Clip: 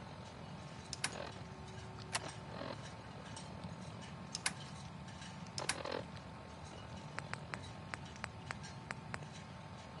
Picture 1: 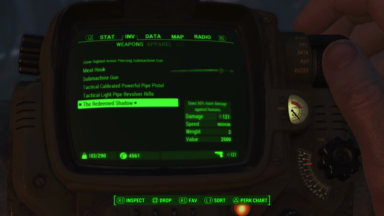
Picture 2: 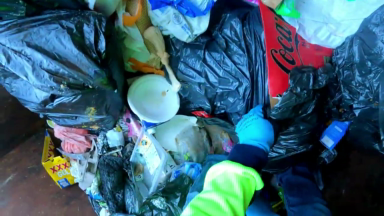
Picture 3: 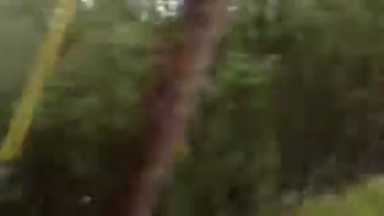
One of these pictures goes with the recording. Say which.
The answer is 1